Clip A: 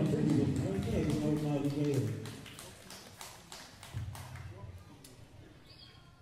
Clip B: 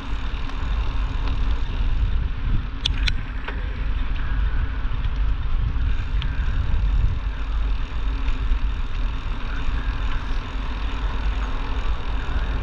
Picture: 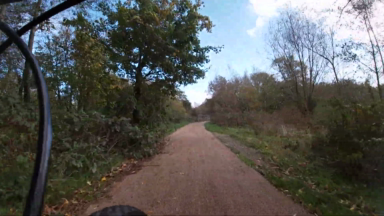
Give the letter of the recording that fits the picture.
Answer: B